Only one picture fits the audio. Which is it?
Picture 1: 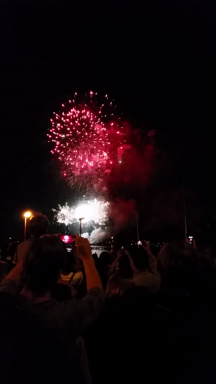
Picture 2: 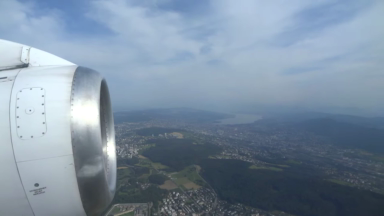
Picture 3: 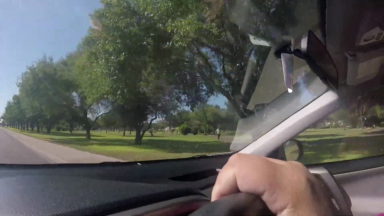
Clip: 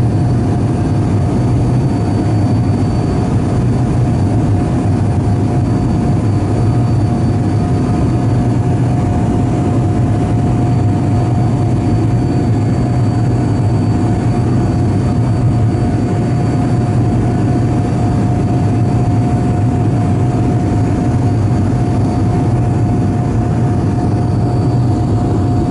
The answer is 2